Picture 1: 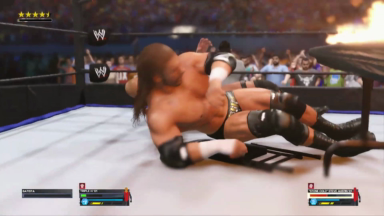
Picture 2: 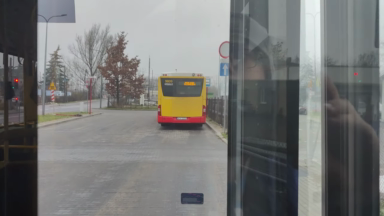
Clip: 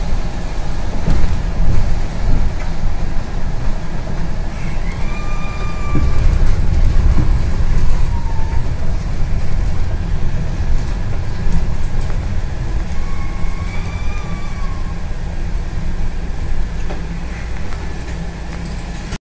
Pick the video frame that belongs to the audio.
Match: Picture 2